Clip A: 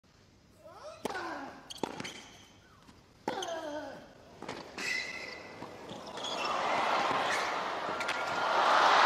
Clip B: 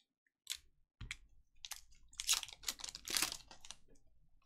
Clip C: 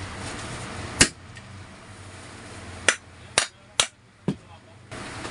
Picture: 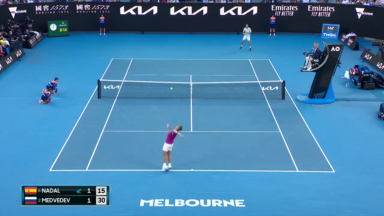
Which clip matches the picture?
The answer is A